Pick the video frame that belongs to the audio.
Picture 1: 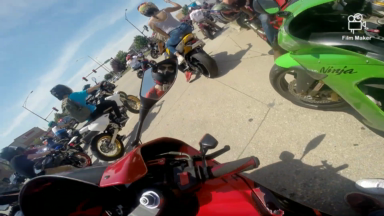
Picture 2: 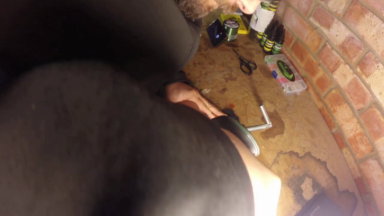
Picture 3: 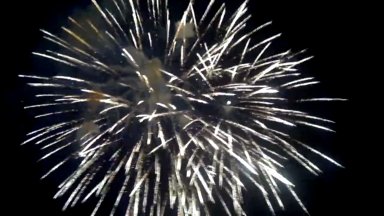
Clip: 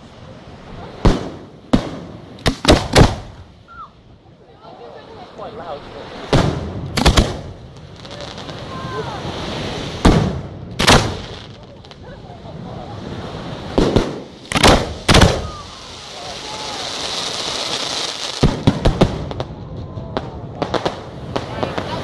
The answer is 3